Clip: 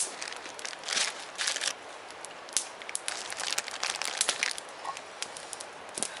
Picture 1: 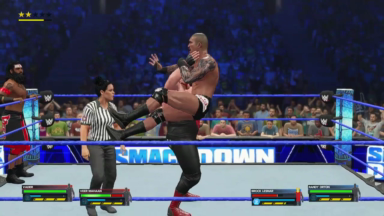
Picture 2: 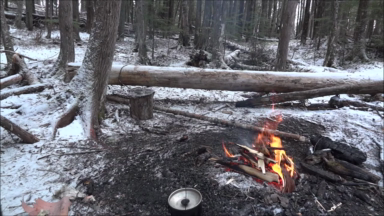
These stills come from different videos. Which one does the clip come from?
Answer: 2